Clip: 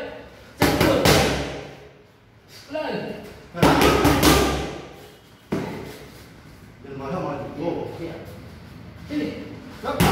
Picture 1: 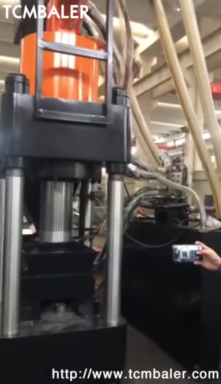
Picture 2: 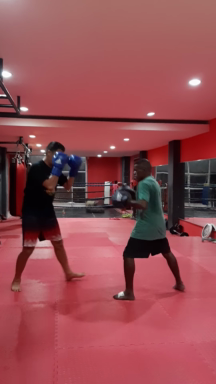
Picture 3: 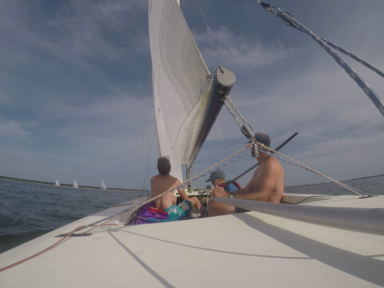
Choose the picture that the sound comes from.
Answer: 2